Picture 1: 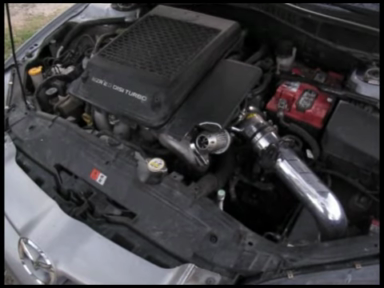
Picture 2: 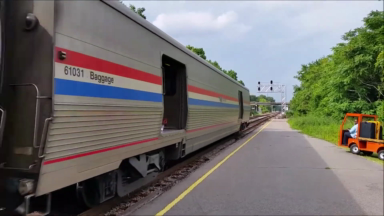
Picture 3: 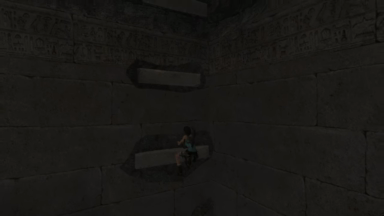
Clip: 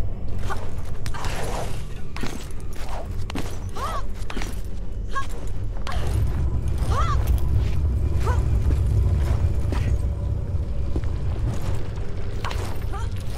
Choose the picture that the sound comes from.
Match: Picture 3